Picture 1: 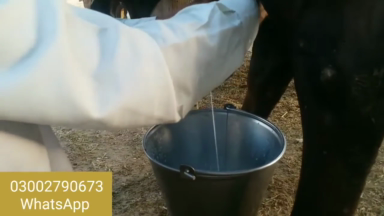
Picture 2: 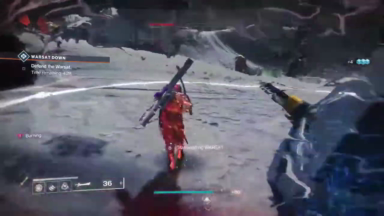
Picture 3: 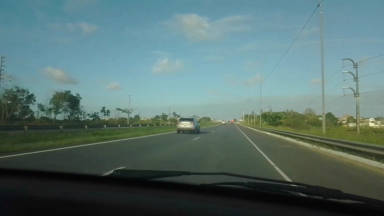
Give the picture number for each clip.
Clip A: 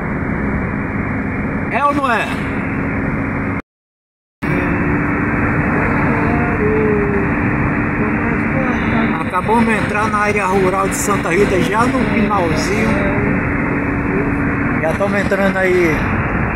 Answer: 3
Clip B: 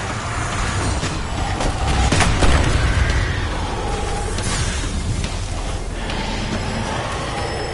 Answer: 2